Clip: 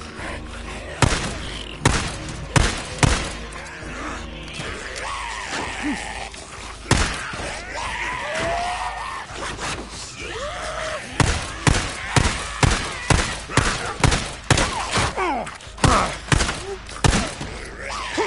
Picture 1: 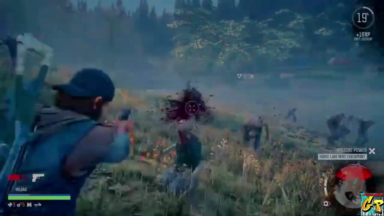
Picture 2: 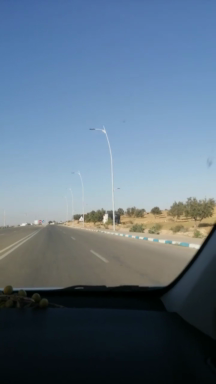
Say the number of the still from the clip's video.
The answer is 1